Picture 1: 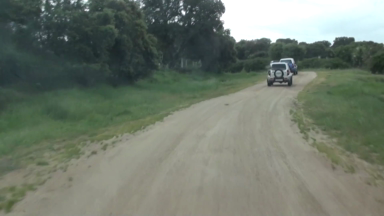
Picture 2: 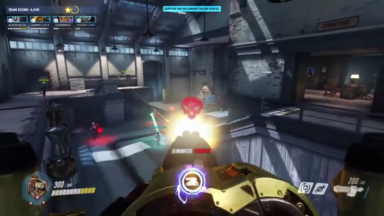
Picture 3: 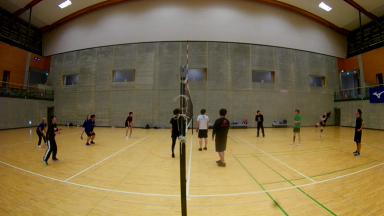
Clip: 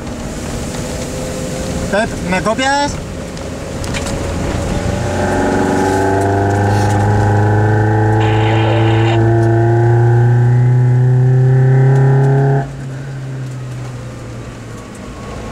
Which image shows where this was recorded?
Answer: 1